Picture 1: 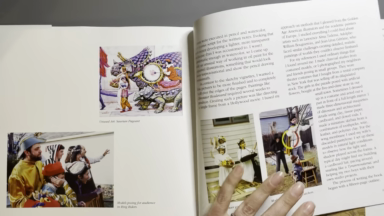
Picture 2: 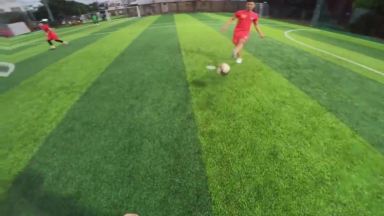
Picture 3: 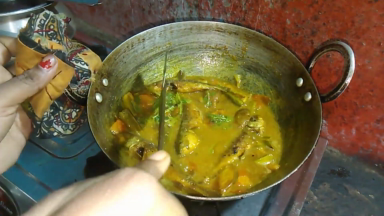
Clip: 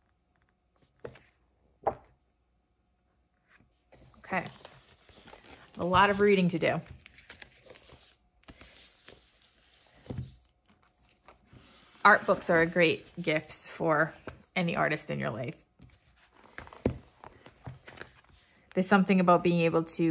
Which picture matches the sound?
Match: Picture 1